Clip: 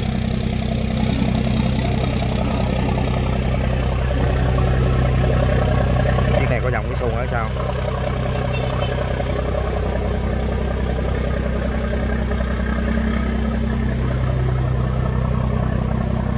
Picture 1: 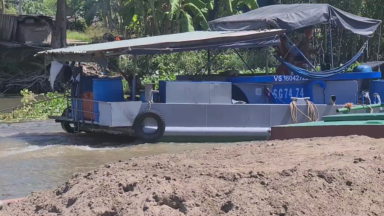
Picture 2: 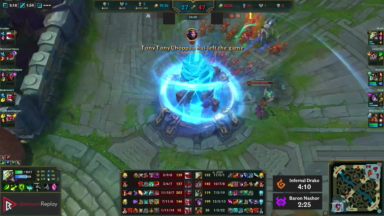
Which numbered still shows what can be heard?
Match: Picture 1